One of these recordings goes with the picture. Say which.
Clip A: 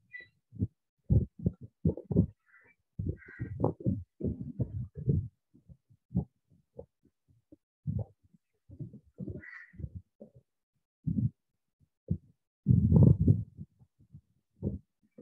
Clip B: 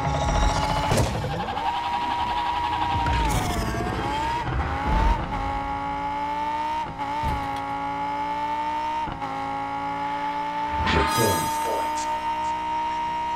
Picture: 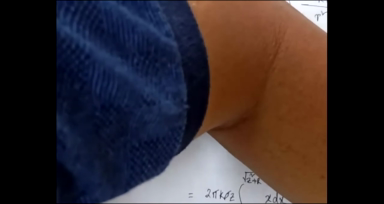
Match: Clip A